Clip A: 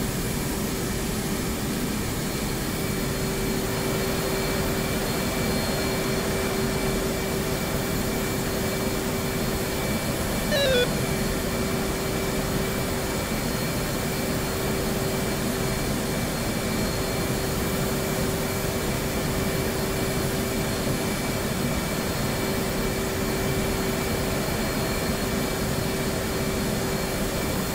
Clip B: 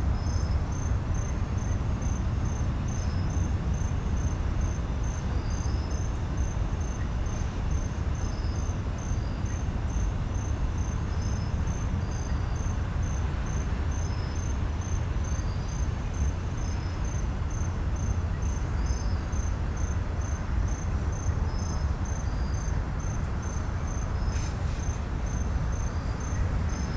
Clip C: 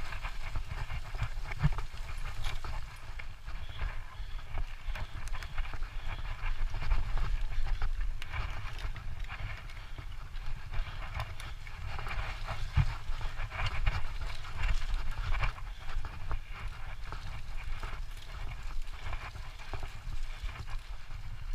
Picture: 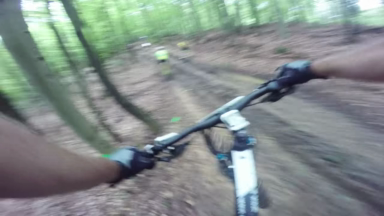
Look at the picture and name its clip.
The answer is C